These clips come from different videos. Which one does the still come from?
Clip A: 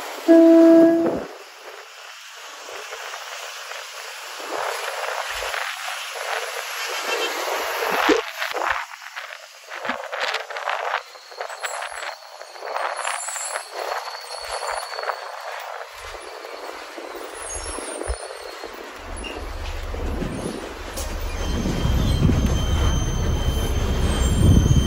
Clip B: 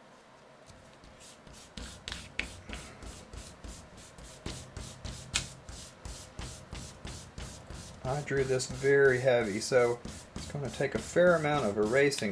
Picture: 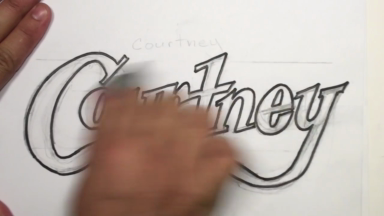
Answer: B